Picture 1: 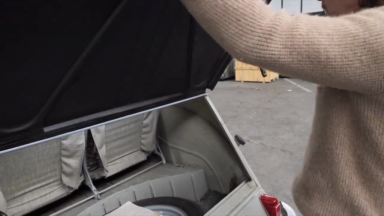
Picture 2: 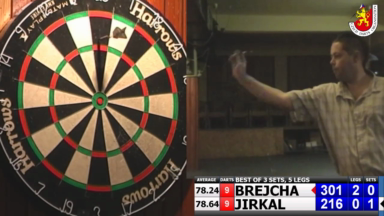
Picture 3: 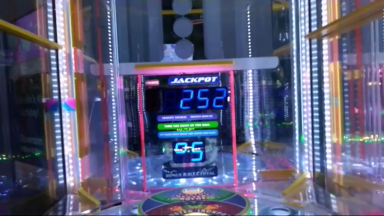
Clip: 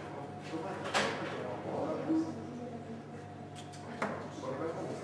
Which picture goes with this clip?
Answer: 2